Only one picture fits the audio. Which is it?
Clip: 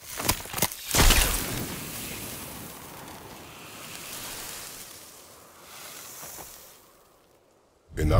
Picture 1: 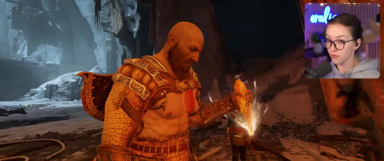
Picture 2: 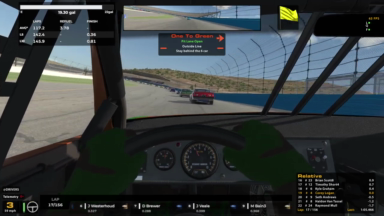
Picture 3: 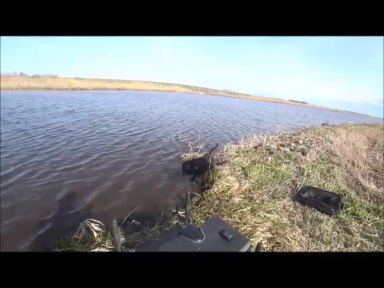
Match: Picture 1